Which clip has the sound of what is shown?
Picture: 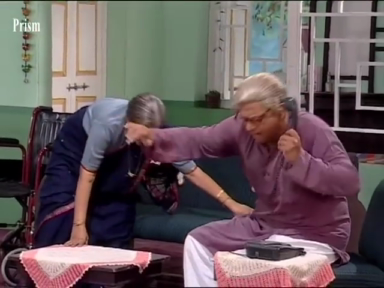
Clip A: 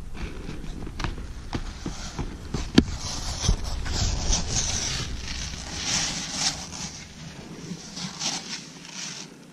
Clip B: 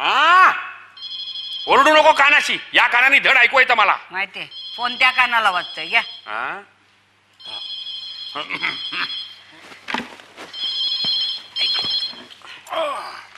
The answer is B